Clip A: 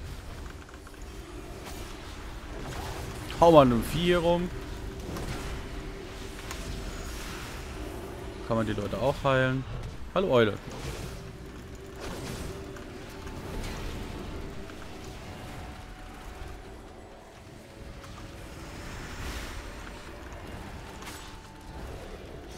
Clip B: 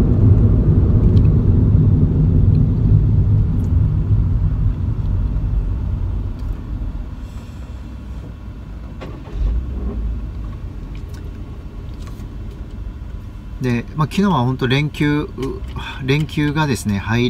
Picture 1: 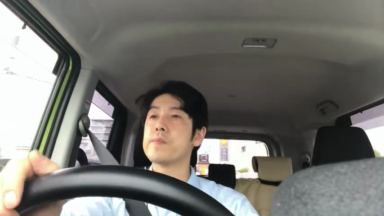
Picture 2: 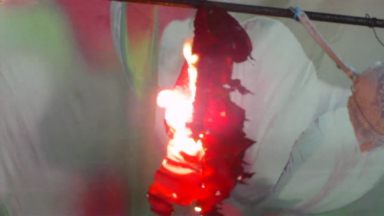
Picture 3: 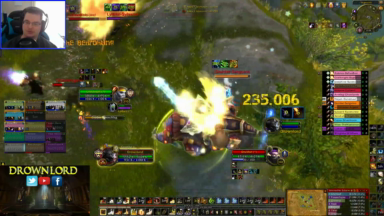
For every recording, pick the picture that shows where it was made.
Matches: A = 3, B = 1